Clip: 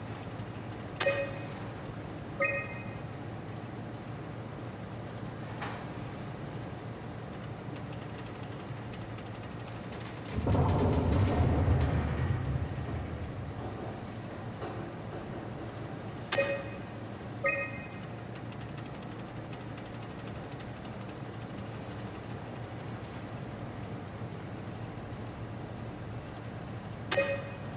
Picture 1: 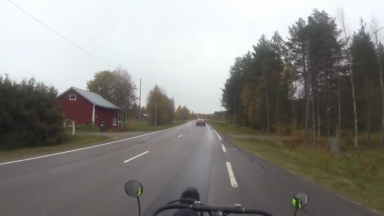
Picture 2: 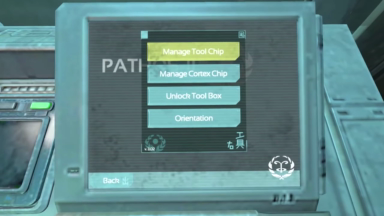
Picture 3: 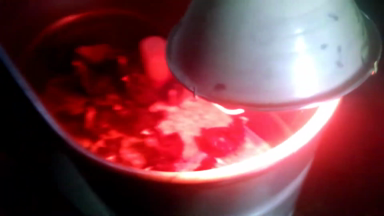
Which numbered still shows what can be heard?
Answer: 2